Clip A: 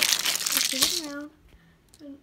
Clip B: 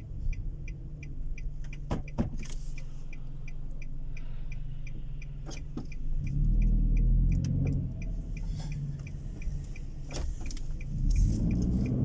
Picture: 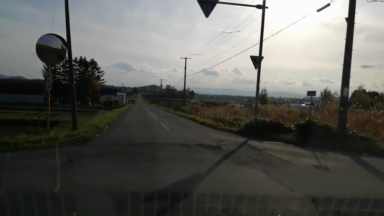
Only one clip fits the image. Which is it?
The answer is B